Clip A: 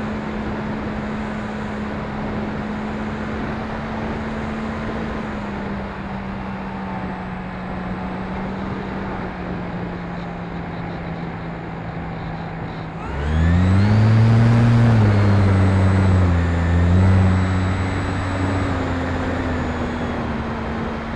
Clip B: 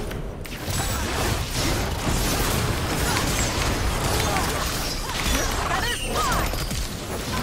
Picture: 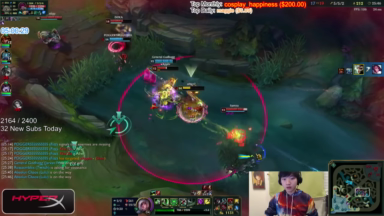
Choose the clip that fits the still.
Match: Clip B